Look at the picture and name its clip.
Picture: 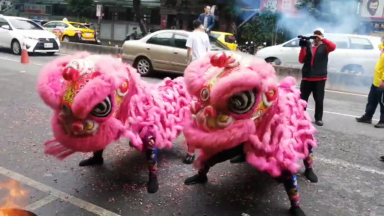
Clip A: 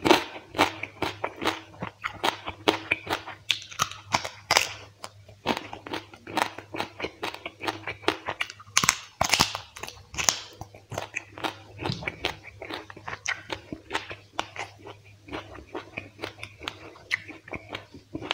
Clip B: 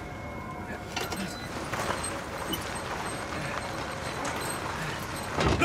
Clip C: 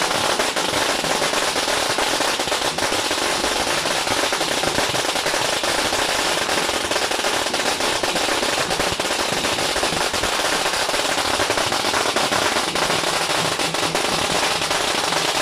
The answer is C